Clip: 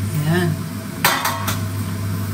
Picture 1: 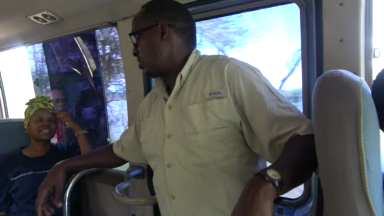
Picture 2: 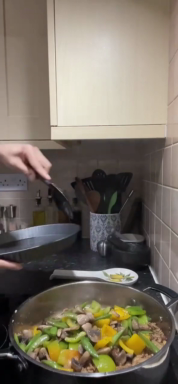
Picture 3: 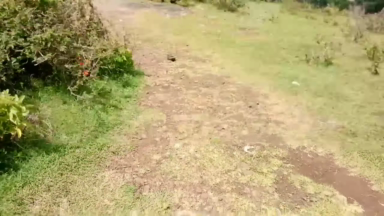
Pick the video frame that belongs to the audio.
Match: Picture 2